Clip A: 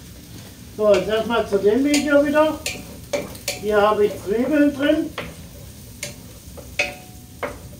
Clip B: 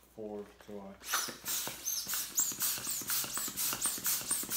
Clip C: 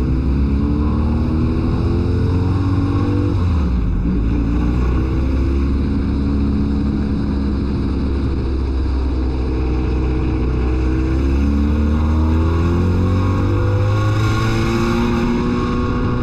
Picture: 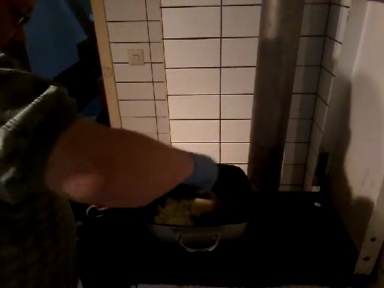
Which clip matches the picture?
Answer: A